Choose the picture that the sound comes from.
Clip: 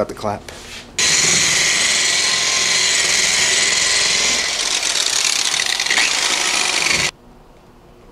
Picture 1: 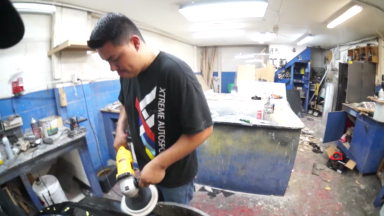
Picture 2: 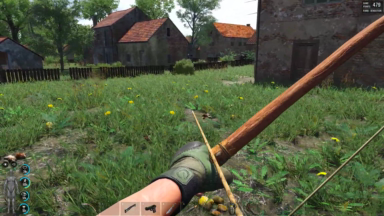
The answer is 1